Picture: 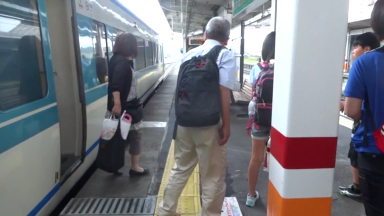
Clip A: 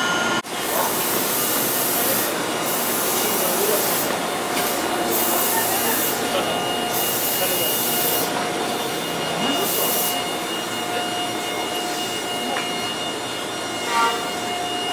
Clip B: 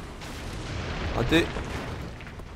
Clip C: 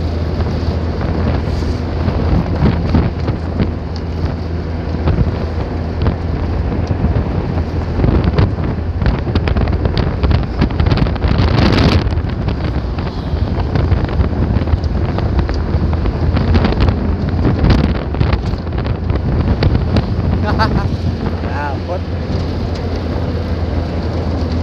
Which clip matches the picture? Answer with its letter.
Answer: A